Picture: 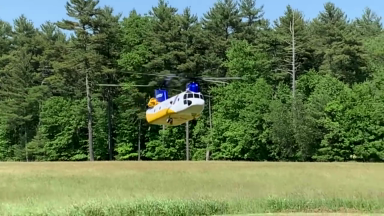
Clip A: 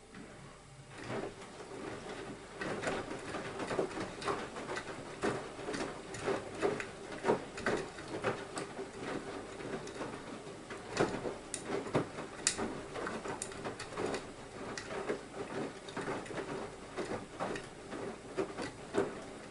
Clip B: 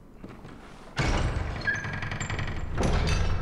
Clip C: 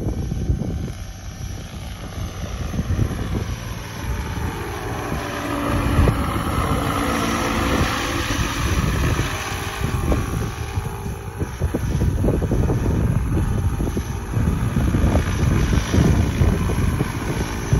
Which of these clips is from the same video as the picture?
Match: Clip C